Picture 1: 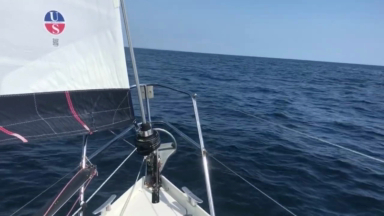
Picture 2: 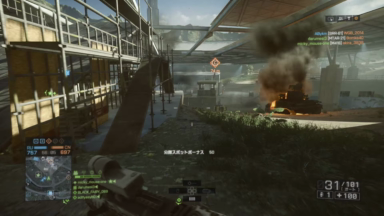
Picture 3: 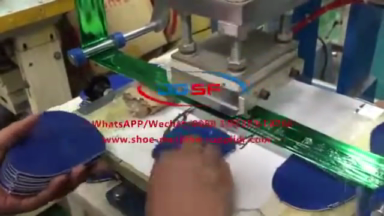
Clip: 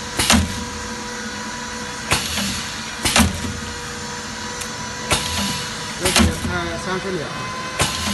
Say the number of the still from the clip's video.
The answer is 3